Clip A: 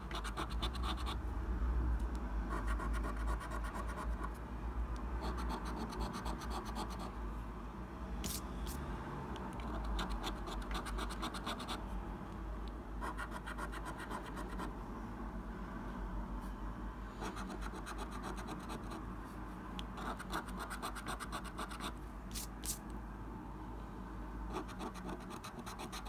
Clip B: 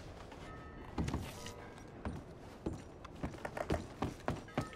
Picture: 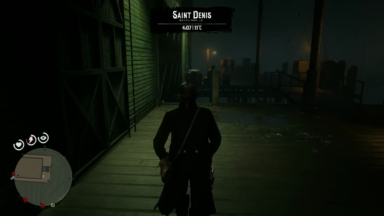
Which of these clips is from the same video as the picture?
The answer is B